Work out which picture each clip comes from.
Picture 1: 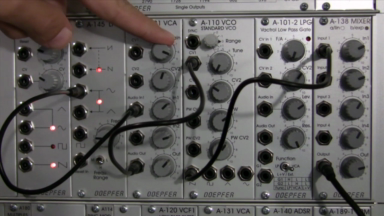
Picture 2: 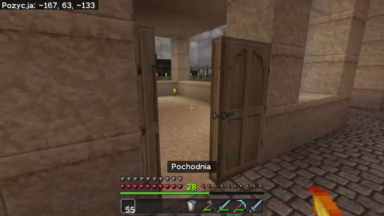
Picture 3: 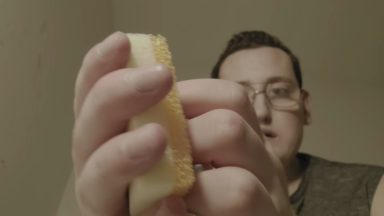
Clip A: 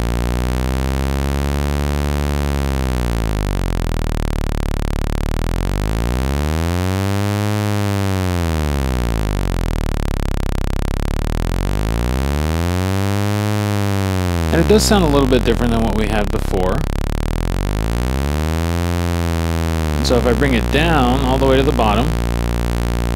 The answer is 1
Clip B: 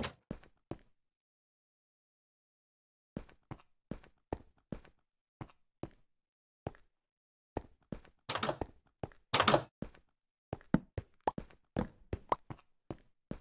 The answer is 2